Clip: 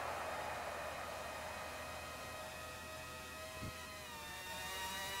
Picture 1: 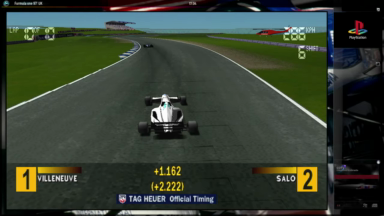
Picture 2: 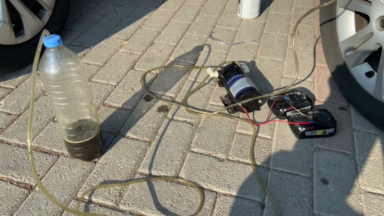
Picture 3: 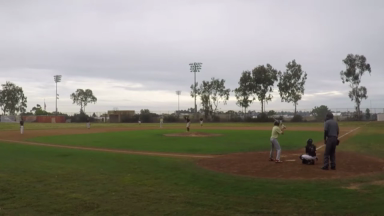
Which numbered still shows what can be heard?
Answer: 1